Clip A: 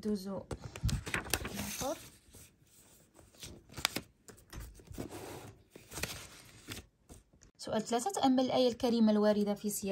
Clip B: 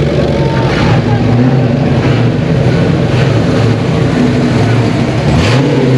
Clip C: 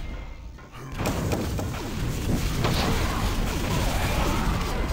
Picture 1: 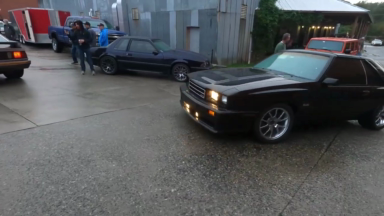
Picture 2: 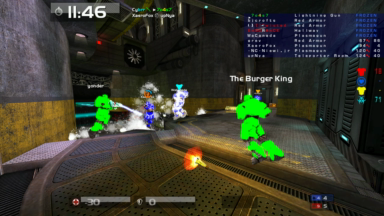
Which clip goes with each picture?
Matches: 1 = B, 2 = C